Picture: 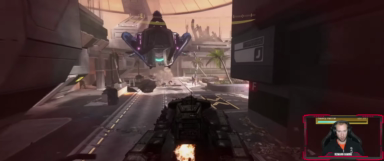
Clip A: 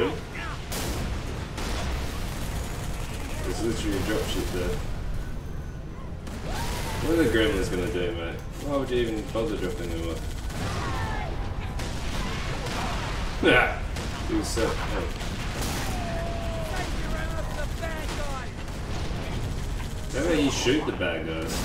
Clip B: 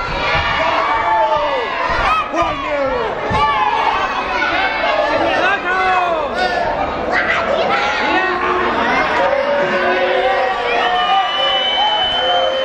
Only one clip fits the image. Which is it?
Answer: A